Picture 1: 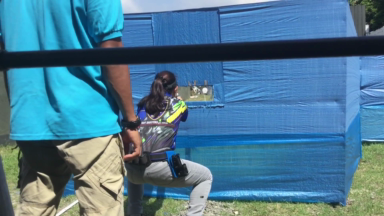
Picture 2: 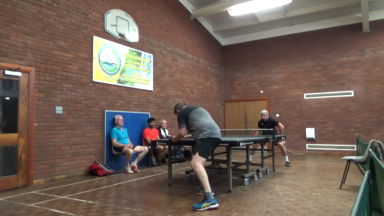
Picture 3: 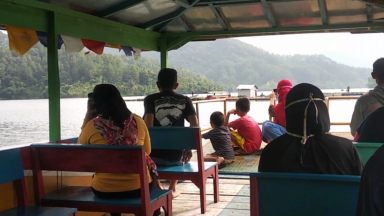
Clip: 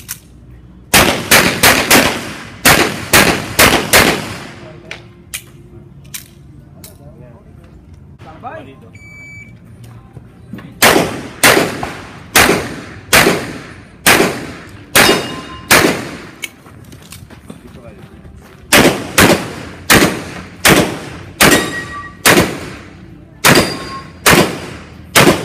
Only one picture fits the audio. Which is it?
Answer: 1